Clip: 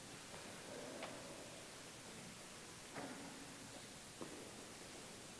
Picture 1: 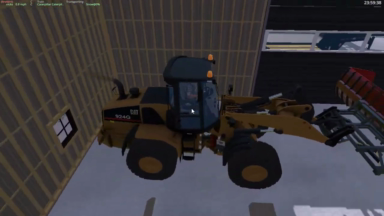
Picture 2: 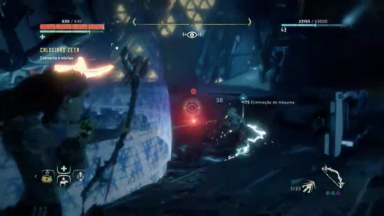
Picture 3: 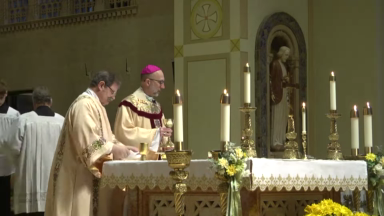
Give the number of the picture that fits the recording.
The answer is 3